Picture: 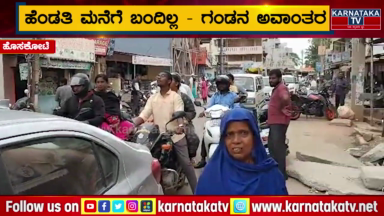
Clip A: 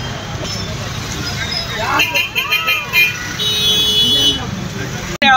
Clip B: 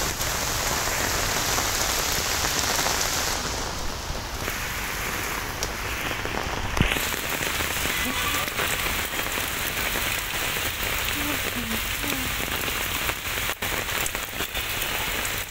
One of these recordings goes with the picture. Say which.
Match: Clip A